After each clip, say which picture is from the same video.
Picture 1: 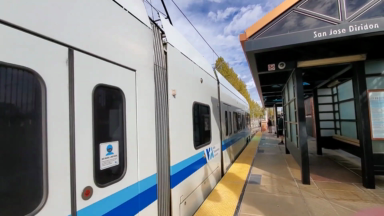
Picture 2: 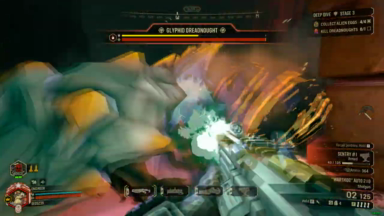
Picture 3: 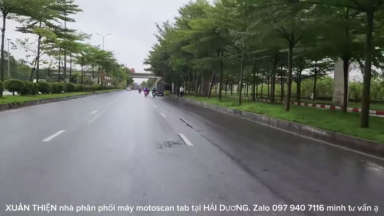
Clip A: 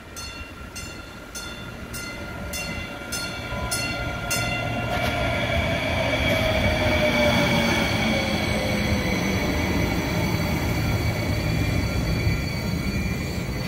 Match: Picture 1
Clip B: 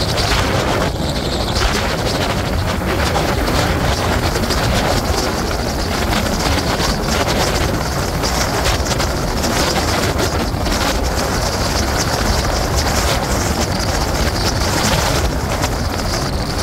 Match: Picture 3